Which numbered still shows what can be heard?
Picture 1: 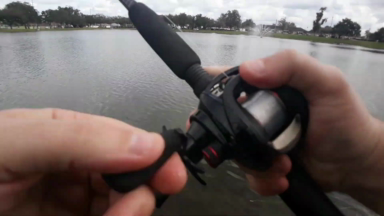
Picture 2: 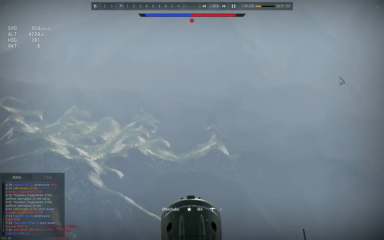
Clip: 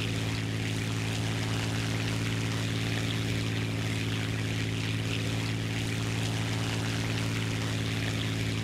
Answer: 2